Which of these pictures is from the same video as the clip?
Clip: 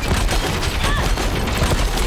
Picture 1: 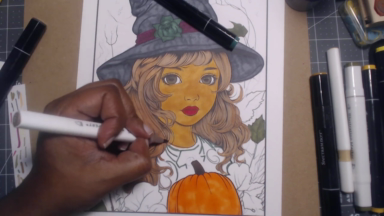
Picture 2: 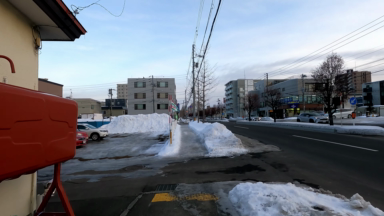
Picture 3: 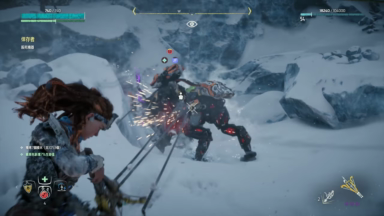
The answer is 3